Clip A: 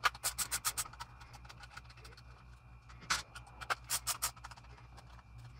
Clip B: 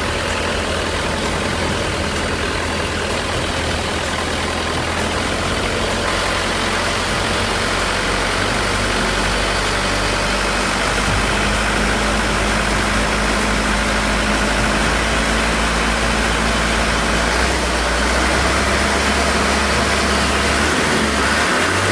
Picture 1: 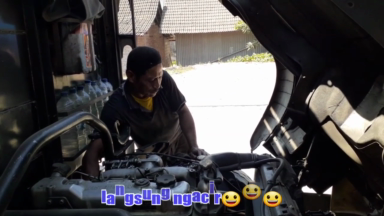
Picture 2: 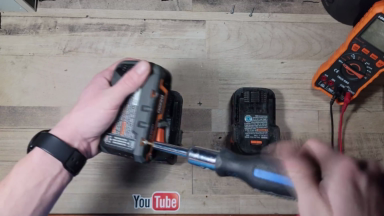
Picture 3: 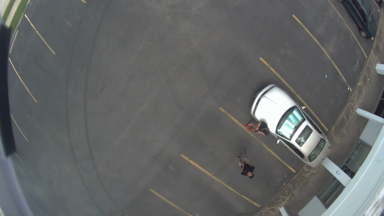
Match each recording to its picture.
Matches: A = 2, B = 1